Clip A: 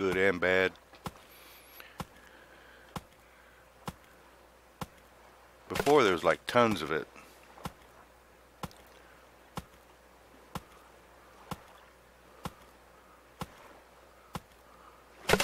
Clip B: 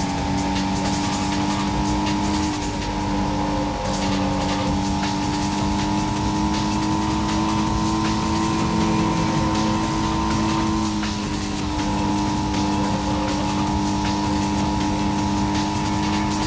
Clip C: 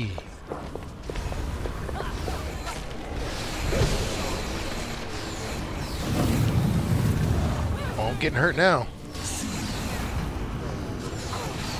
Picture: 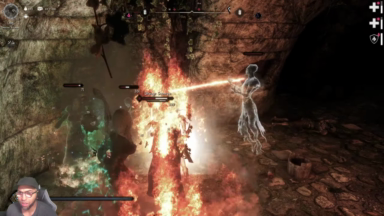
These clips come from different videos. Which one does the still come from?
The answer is C